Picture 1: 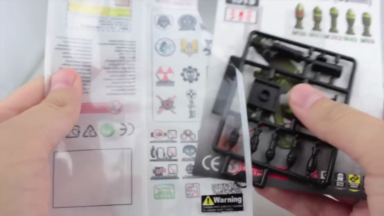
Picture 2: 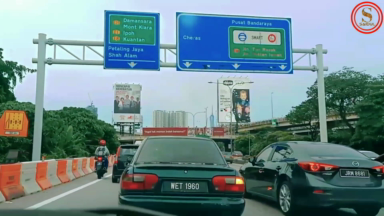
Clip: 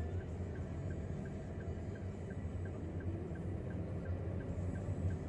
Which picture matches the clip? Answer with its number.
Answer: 2